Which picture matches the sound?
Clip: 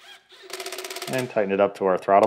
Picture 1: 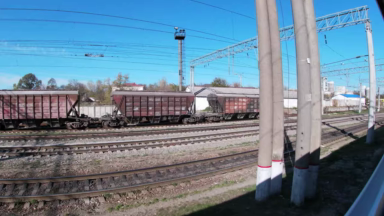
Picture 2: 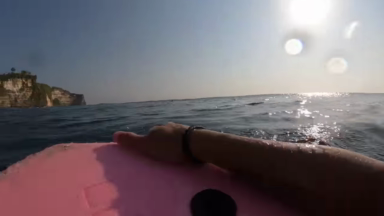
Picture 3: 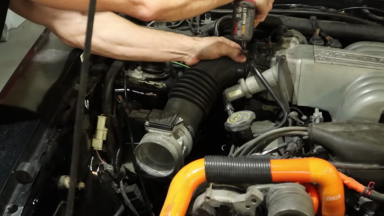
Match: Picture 3